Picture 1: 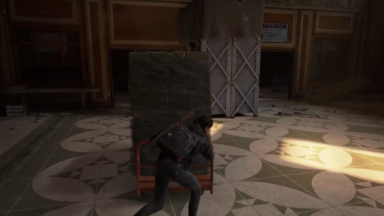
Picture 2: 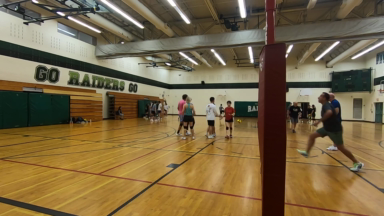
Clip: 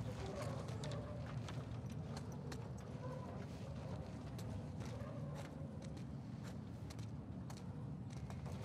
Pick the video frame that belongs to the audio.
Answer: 1